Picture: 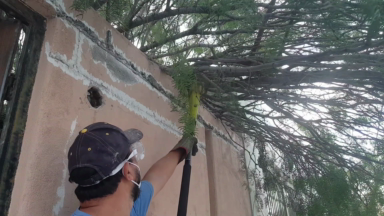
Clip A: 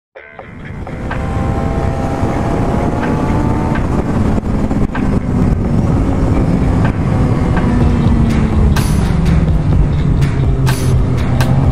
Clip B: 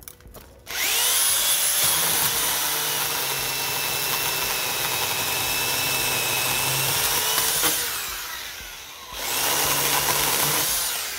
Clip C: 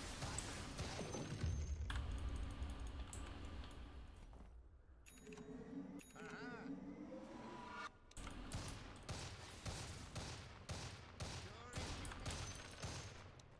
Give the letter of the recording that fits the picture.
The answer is B